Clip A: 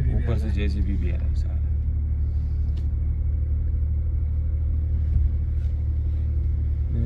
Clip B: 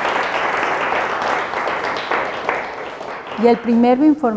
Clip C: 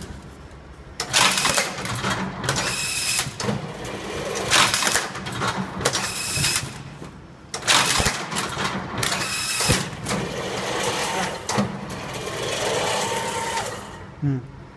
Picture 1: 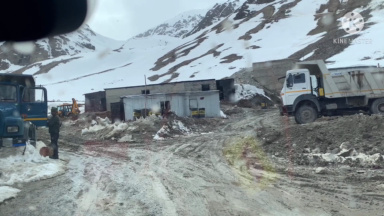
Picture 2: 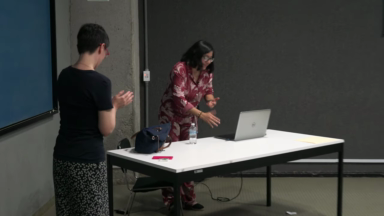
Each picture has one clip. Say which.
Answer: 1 A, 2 B